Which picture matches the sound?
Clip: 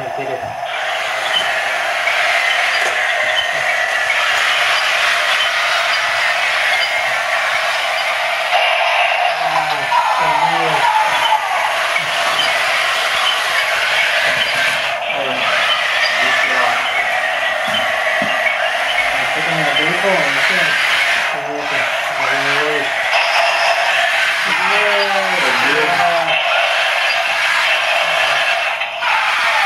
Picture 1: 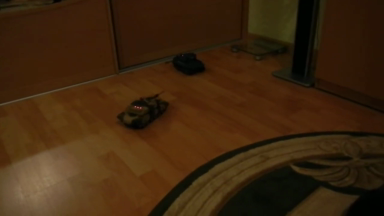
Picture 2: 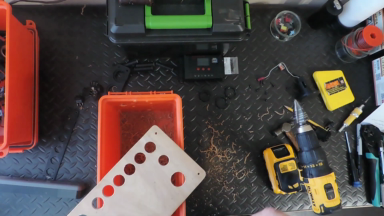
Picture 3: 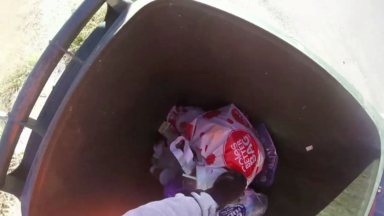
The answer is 1